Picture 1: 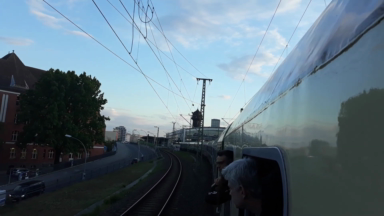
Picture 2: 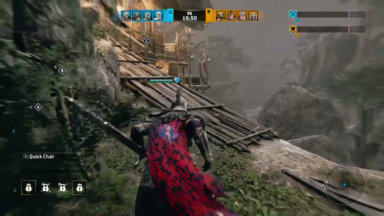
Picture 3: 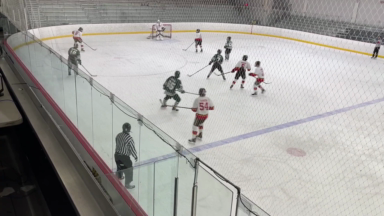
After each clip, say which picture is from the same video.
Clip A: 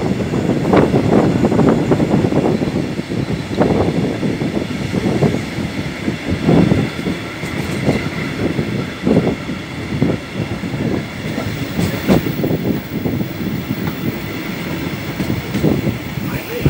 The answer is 1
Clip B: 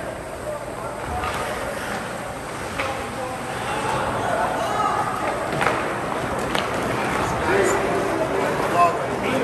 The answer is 3